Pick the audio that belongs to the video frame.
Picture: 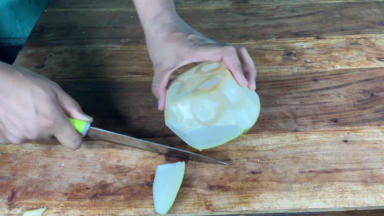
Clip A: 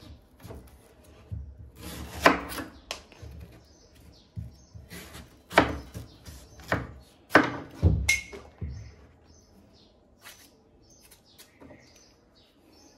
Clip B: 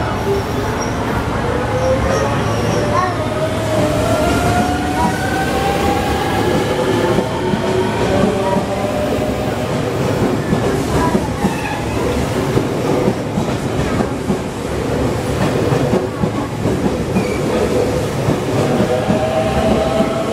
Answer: A